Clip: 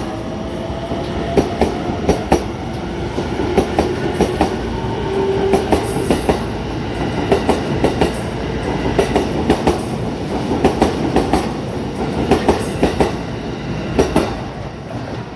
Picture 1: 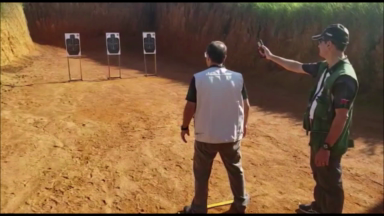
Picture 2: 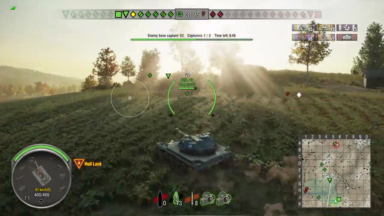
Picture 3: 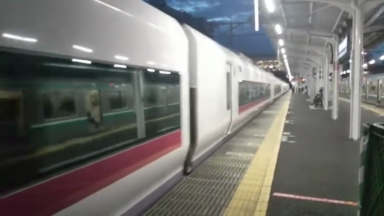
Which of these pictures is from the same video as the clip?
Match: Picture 3